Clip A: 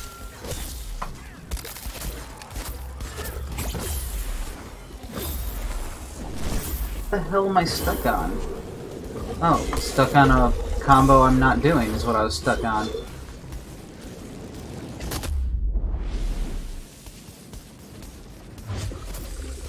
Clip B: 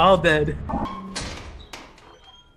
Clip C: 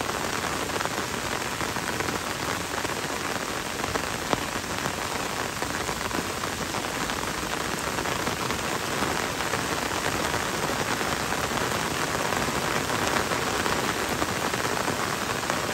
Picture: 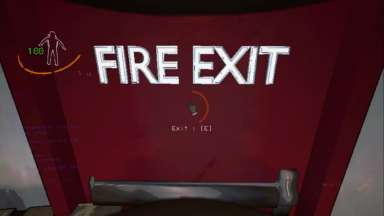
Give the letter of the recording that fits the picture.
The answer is B